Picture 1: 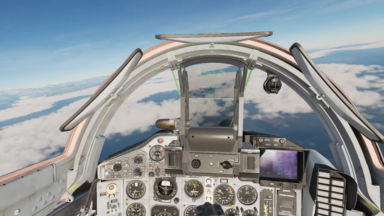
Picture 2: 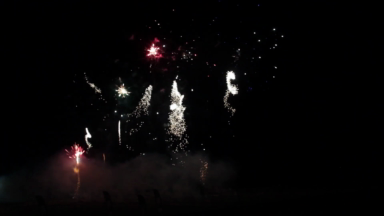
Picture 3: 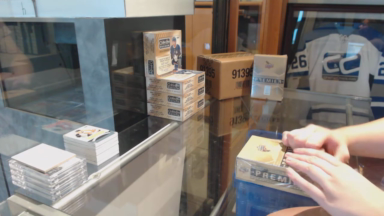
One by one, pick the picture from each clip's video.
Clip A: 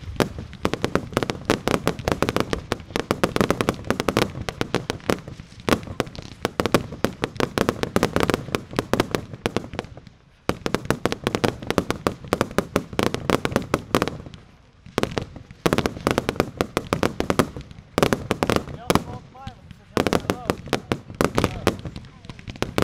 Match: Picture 2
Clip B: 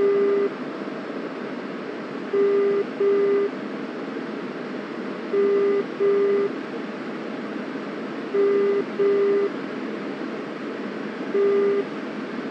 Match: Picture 1